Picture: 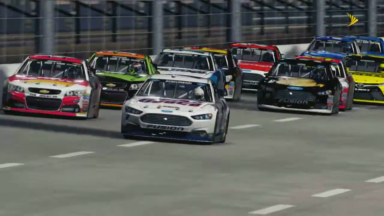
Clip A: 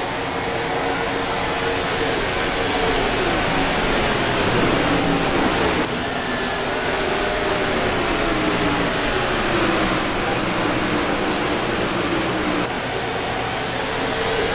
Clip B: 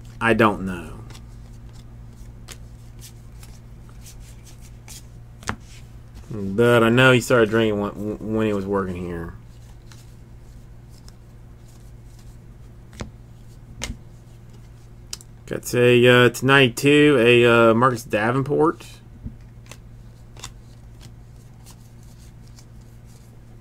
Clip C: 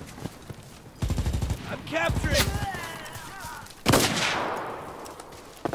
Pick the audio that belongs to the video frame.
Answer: A